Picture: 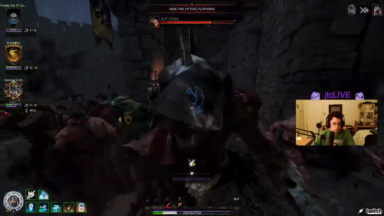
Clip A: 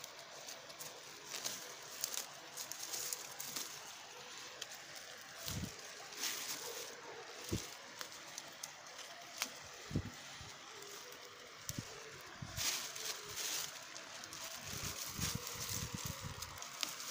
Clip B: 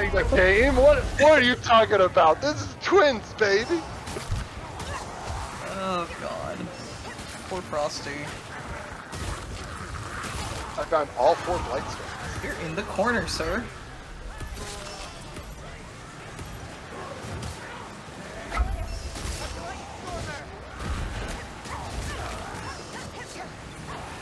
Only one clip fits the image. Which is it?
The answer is B